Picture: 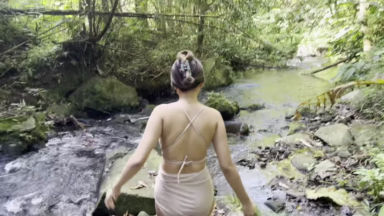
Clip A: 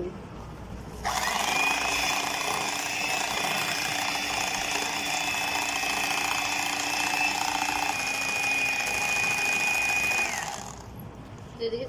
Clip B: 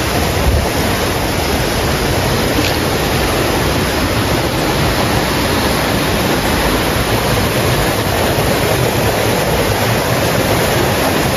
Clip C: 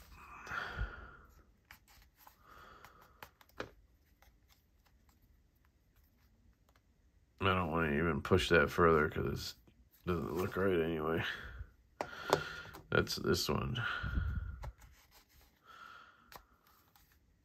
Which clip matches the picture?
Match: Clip B